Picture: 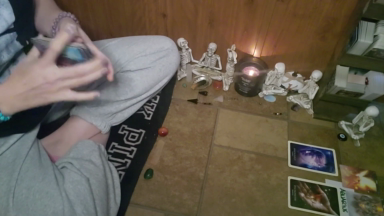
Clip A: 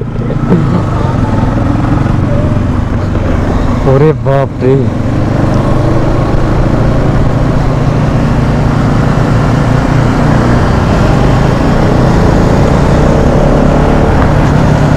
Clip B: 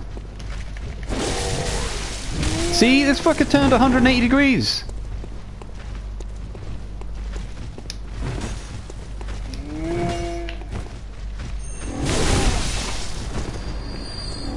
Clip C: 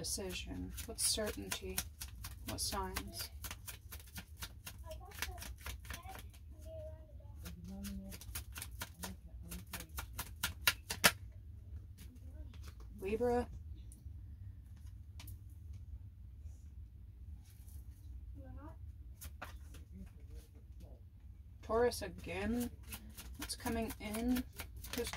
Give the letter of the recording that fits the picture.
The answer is C